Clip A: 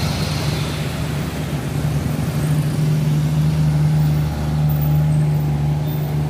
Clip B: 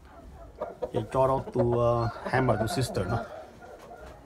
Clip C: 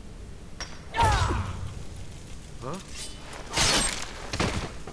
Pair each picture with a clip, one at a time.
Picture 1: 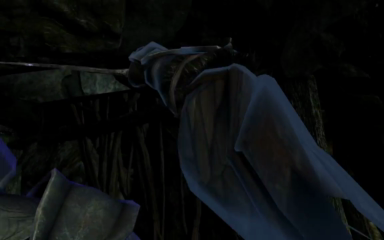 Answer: C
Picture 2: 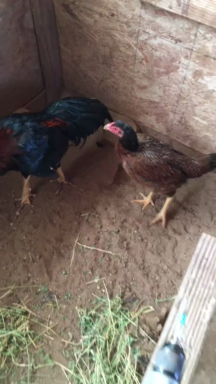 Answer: B